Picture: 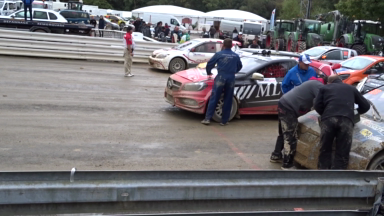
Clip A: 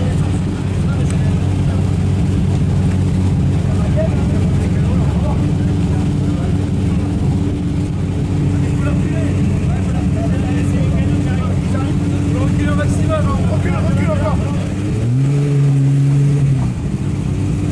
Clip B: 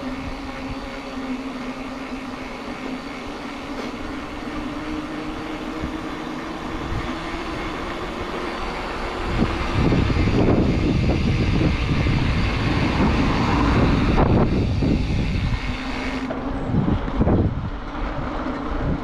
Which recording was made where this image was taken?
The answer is A